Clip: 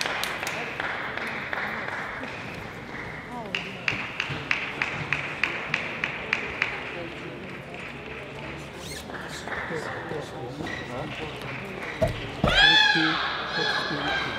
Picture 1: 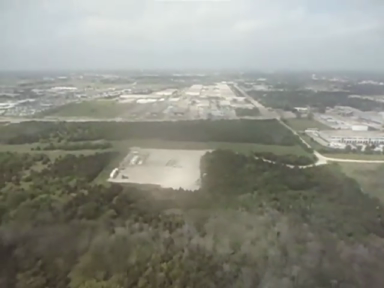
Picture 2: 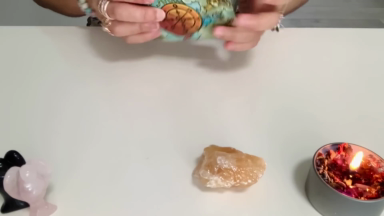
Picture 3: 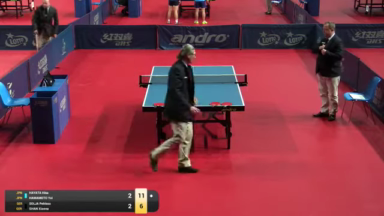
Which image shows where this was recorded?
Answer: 3